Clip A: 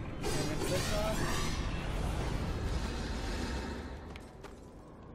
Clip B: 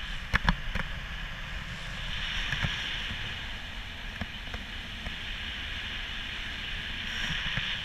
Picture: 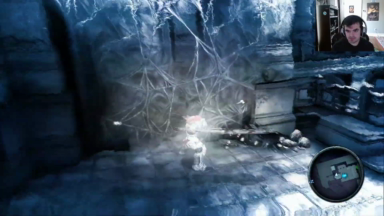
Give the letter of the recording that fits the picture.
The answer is A